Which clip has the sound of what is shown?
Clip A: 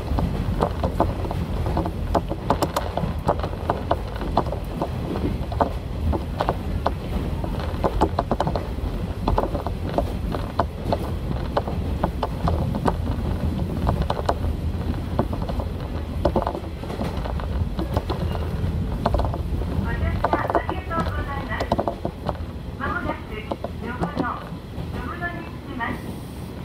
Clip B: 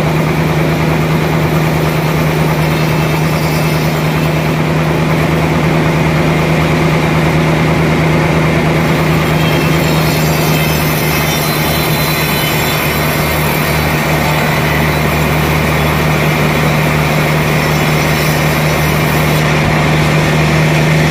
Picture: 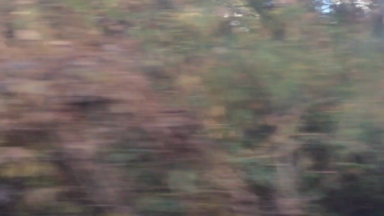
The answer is A